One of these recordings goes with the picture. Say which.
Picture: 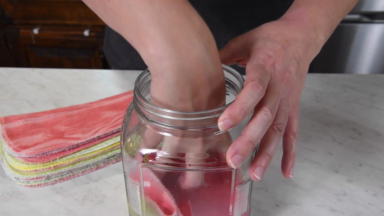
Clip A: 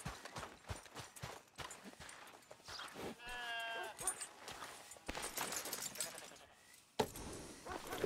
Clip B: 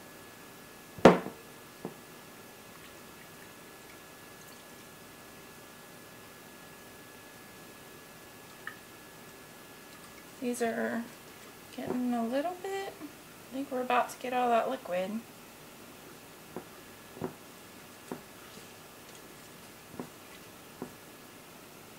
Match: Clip B